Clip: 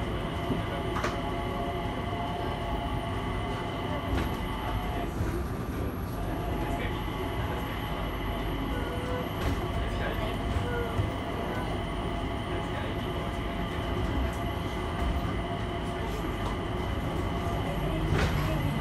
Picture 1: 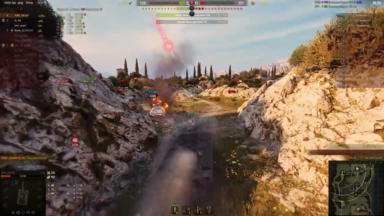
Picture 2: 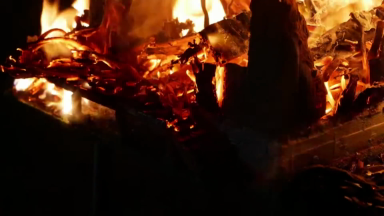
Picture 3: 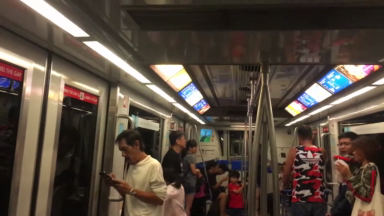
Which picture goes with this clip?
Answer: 3